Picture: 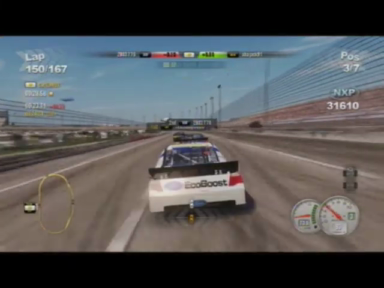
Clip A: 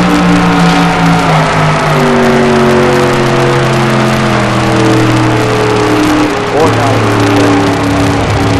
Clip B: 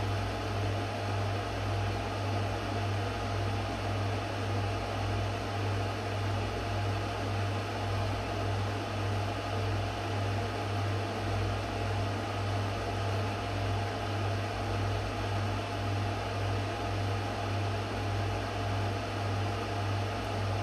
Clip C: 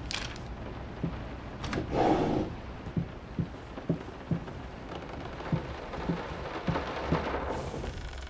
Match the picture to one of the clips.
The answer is A